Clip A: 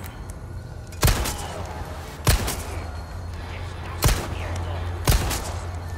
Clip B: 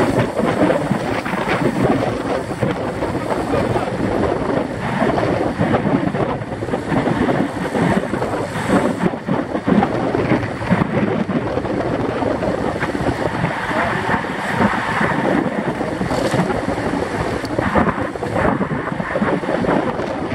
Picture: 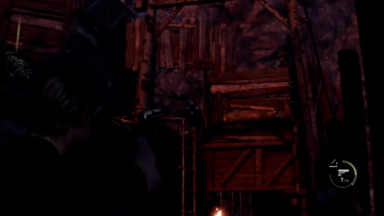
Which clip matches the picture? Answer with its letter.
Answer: A